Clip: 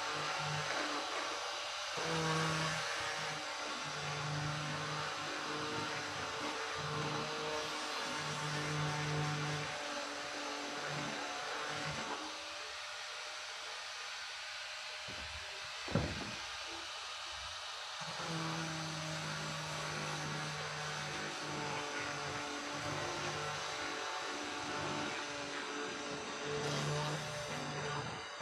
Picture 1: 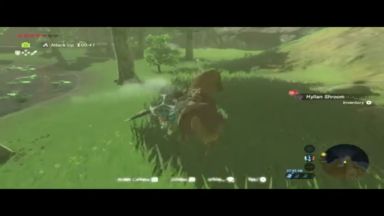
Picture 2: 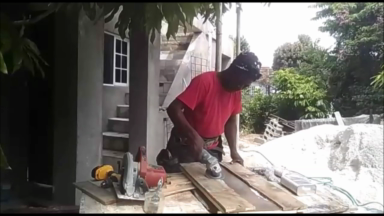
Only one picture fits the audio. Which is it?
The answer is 2